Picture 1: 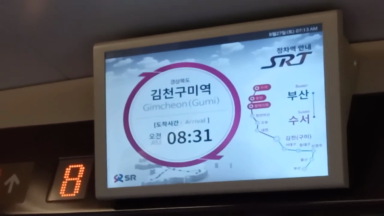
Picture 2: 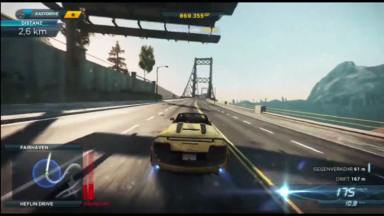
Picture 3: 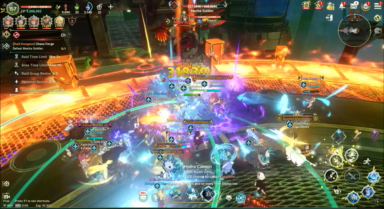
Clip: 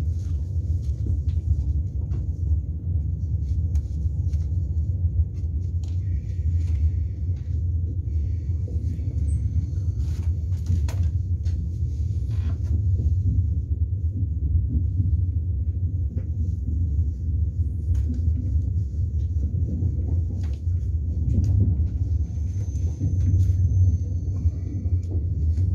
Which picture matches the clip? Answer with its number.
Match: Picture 1